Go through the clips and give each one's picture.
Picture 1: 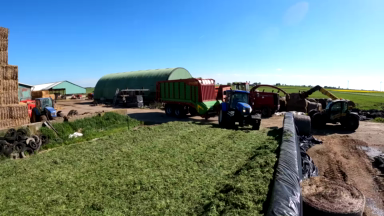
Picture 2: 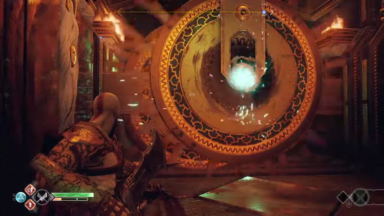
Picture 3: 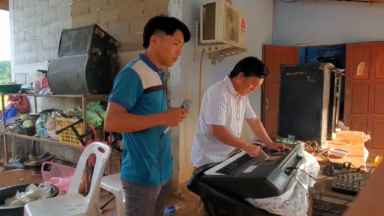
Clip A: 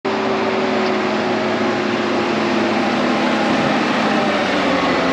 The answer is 1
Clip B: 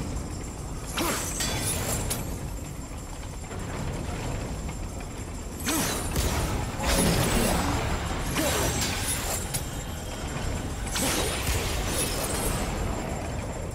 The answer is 2